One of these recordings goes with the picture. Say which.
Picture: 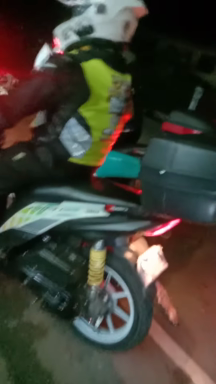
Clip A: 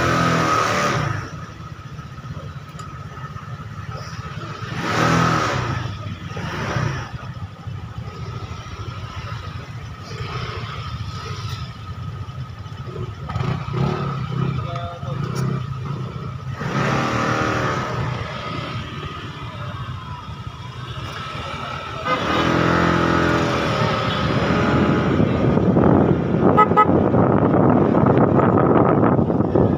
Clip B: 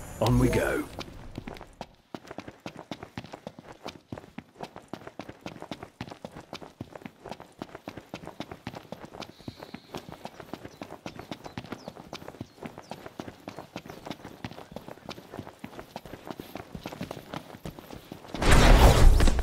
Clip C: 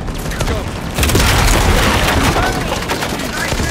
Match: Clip A